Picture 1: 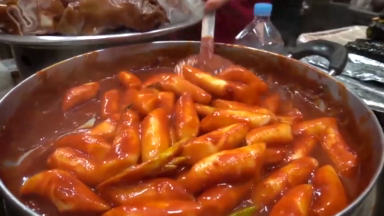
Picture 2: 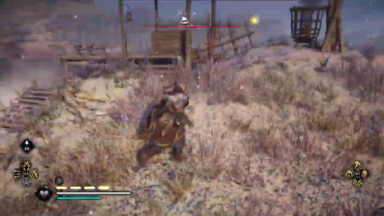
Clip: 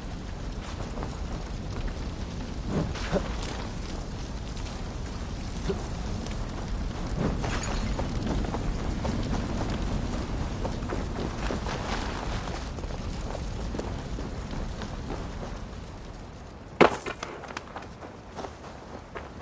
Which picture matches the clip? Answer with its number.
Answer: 2